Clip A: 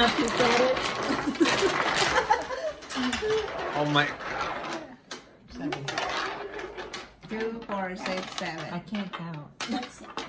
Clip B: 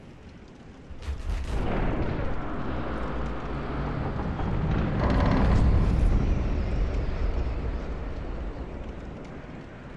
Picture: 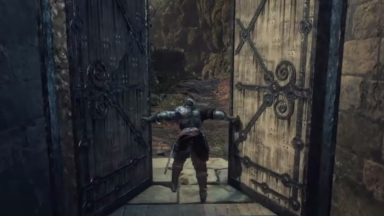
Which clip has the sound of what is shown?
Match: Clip B